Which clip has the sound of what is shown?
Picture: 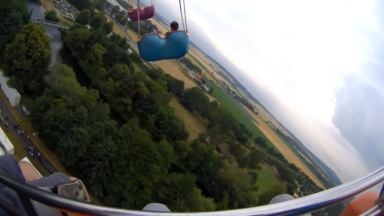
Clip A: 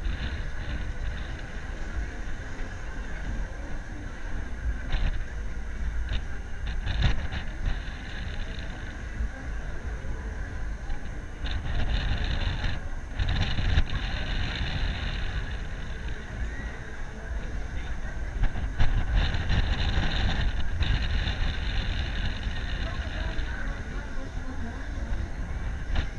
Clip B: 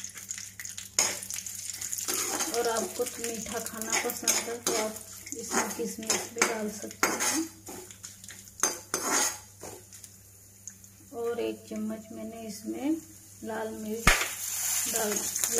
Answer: A